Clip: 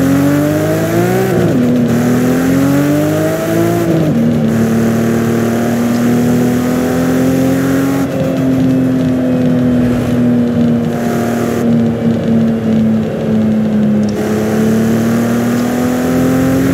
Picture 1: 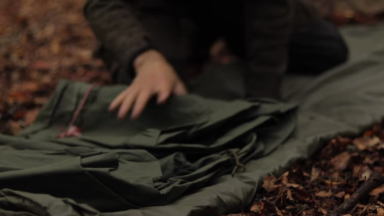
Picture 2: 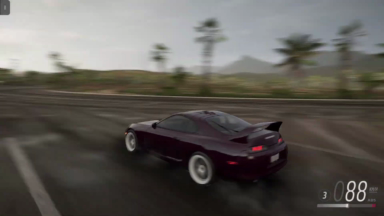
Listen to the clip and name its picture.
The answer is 2